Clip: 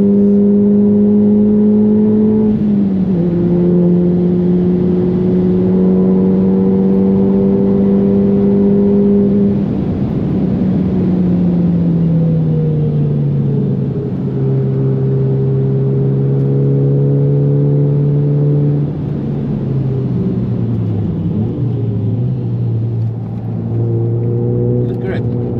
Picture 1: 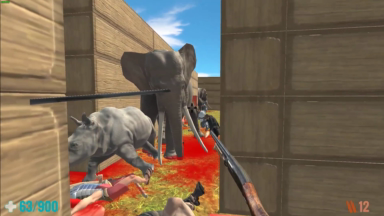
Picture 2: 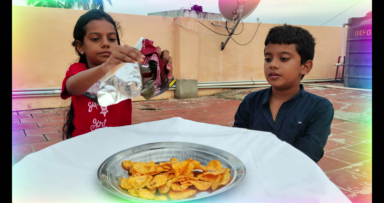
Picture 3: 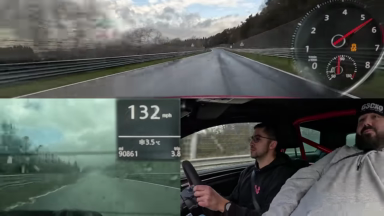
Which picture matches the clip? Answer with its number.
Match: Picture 3